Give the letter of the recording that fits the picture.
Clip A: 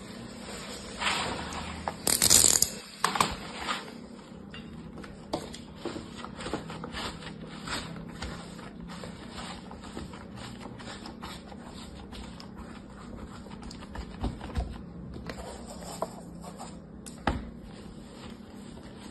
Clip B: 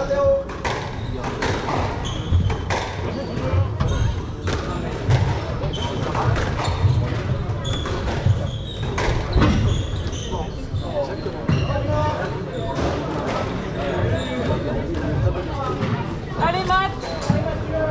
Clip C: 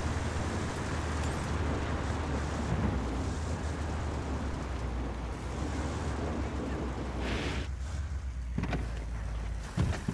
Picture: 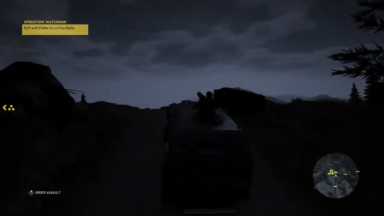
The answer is C